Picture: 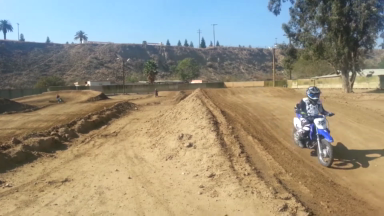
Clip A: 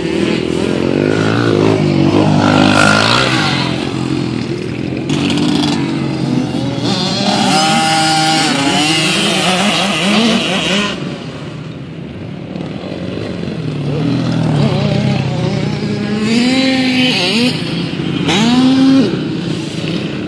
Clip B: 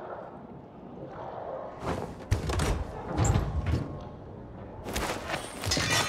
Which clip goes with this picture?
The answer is A